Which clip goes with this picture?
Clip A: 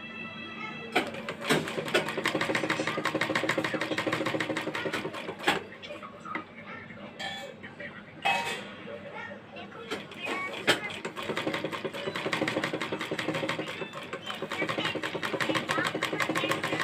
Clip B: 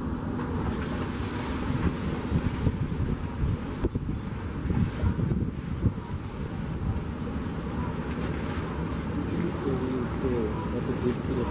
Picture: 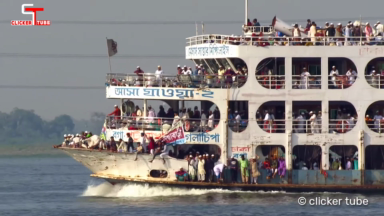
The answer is B